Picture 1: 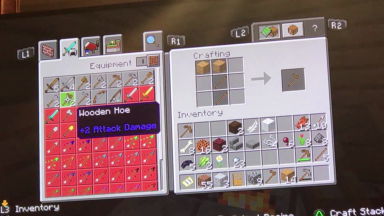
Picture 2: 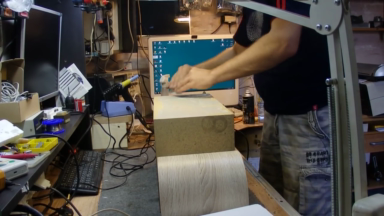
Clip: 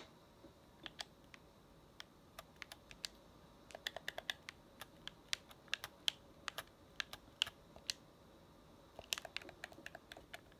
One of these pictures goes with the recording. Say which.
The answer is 1